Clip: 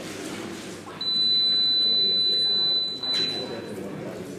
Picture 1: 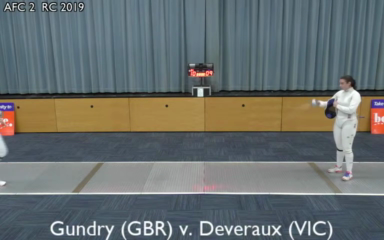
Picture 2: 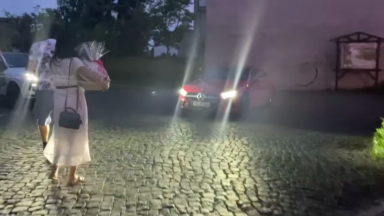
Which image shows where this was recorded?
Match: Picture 1